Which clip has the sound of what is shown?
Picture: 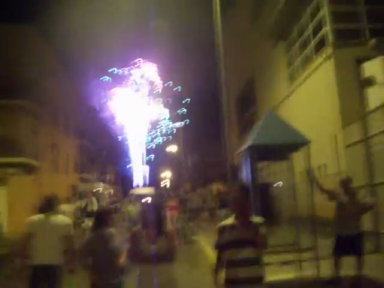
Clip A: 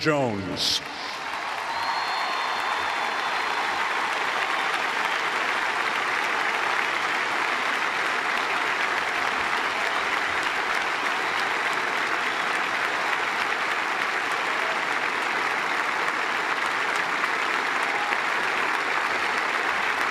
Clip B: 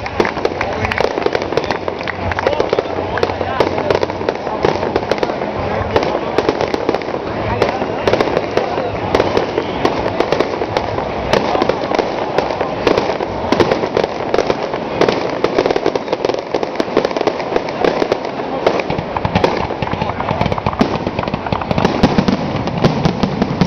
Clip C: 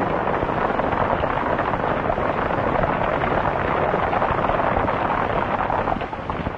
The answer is B